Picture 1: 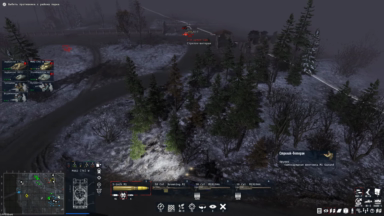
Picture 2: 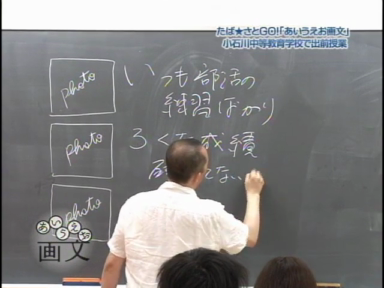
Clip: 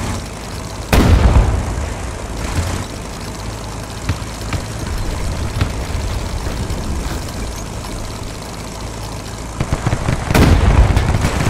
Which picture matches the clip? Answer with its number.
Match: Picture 1